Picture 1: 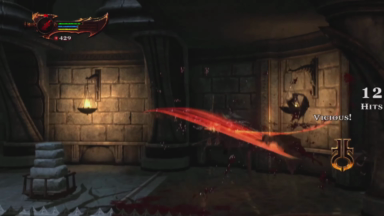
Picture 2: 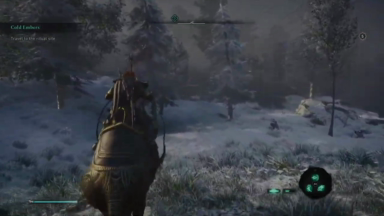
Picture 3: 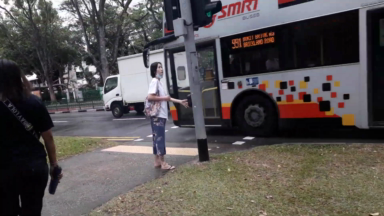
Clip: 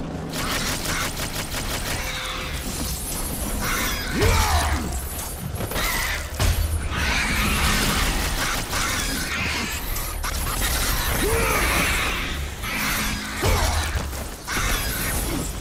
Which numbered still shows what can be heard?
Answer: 1